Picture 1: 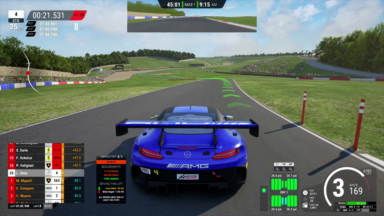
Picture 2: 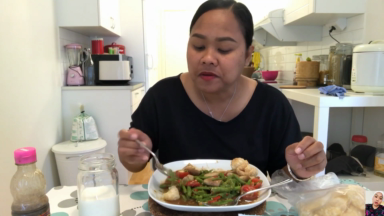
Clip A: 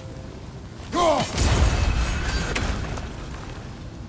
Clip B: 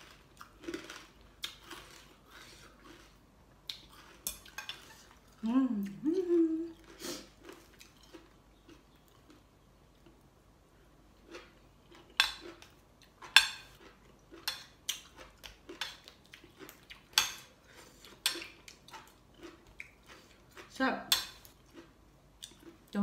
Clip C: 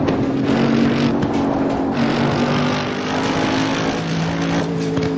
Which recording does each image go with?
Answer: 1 C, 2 B